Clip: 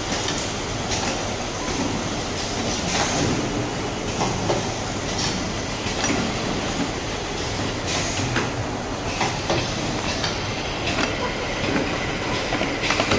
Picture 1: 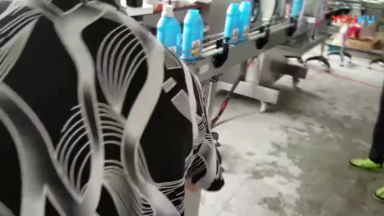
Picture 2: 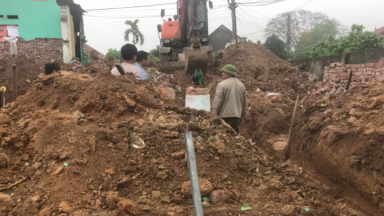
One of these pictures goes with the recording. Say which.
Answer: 1